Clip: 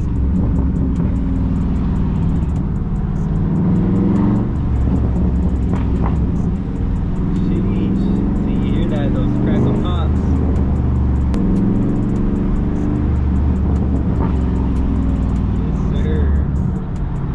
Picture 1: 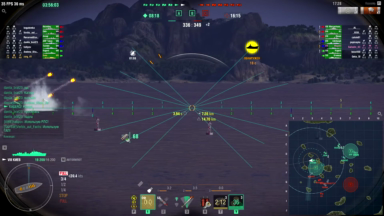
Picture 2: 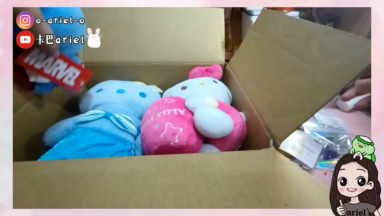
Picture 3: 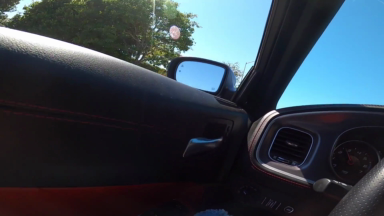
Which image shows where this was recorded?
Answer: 3